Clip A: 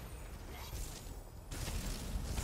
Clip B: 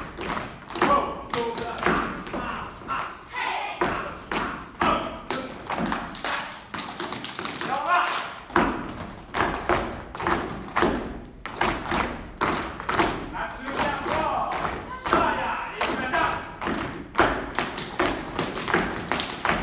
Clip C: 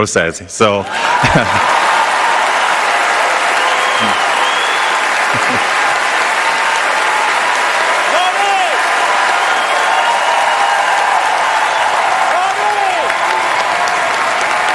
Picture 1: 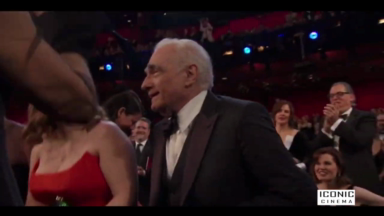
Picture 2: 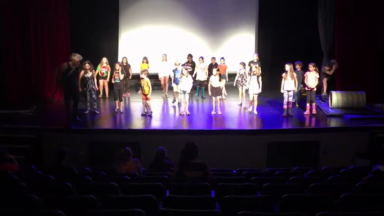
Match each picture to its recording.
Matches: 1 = C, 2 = B